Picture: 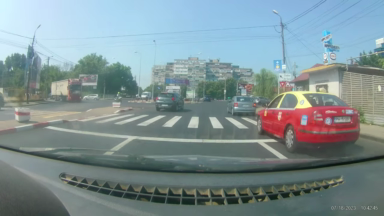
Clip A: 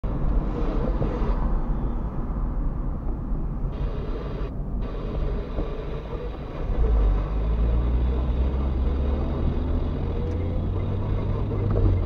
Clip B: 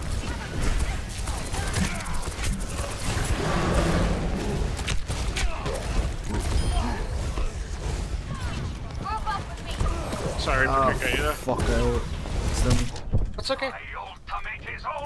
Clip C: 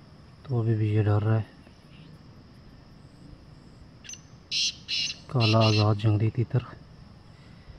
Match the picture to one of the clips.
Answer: A